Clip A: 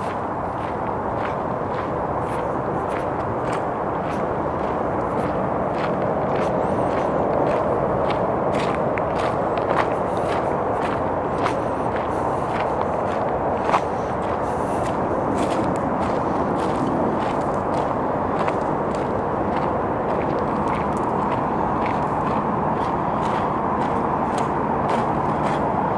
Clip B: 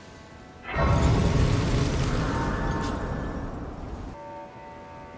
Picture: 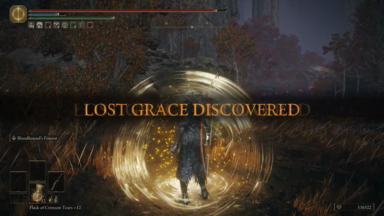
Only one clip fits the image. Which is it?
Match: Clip B